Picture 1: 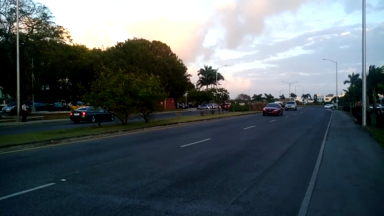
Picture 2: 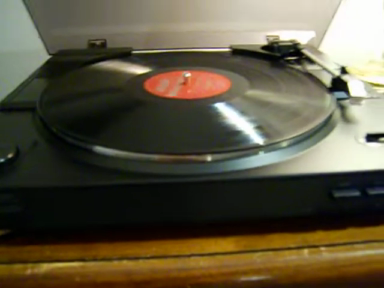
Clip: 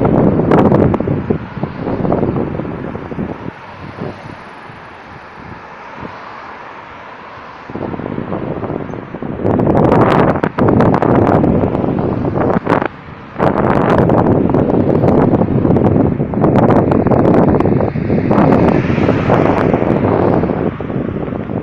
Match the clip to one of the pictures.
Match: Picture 1